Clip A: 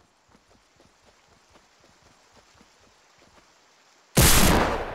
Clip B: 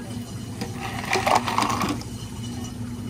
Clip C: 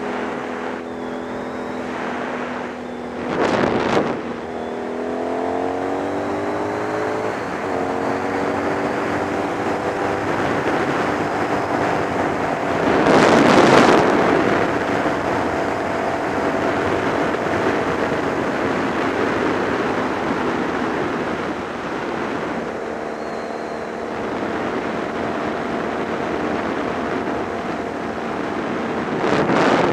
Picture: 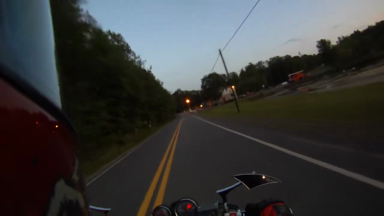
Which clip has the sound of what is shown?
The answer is C